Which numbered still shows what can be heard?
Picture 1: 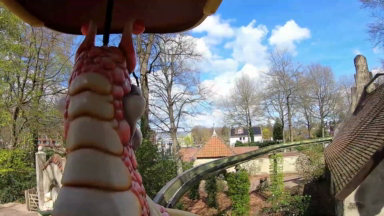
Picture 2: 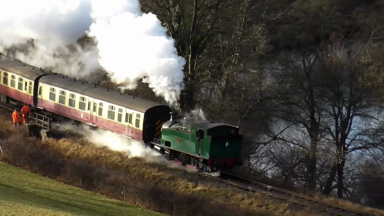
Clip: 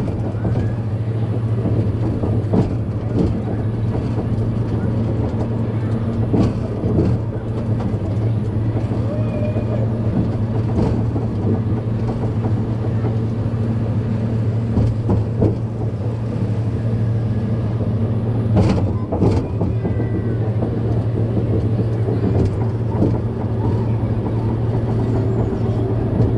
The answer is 1